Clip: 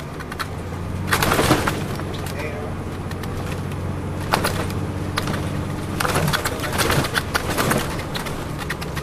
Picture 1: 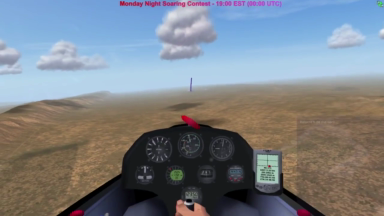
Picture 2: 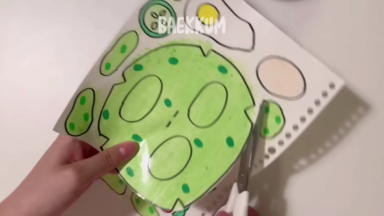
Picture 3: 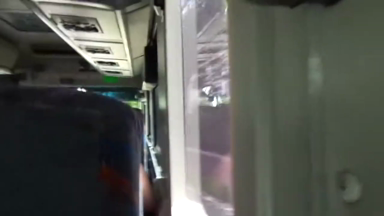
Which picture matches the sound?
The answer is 3